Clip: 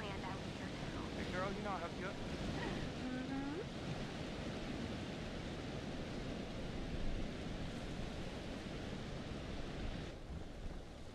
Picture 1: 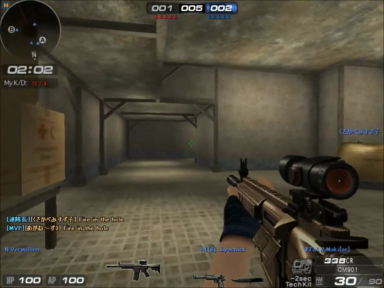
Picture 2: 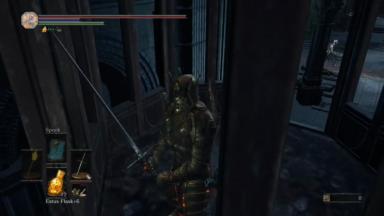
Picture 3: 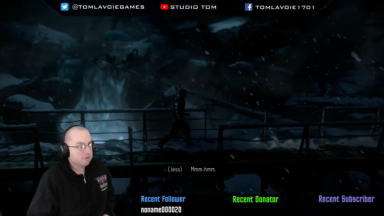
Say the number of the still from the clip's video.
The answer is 3